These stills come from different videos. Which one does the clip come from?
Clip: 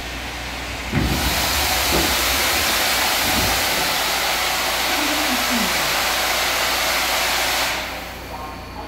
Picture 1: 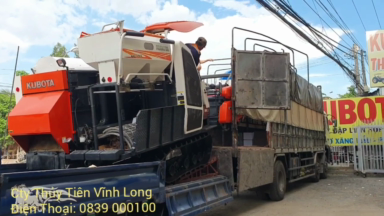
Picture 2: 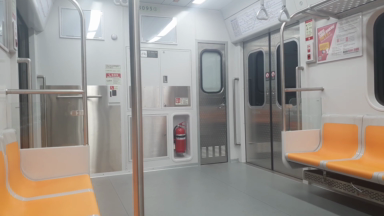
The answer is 2